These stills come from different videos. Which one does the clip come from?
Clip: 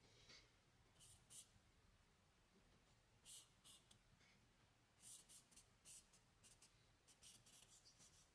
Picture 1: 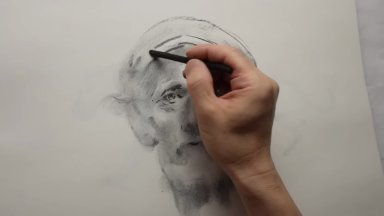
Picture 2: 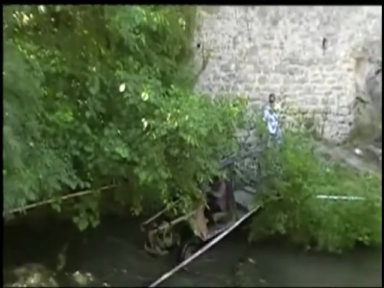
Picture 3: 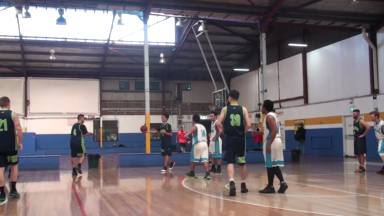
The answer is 1